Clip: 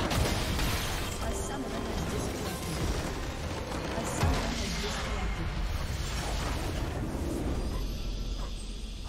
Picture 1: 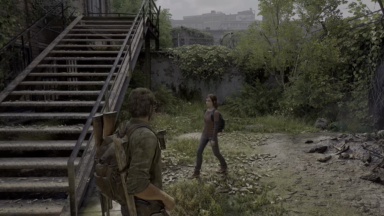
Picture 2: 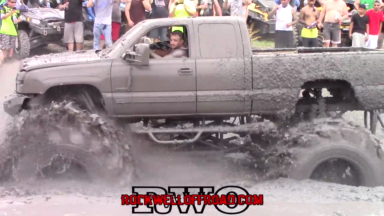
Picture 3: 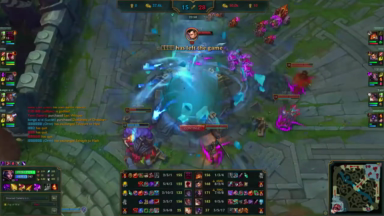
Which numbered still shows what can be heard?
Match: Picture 3